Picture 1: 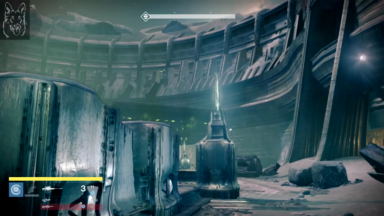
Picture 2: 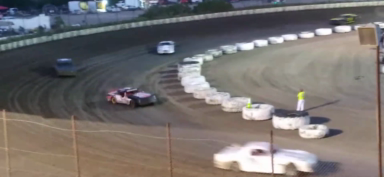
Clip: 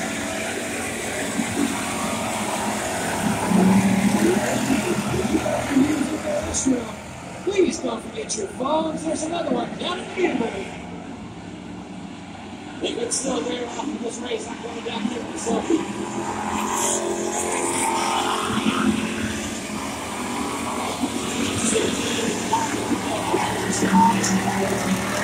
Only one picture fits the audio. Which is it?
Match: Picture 2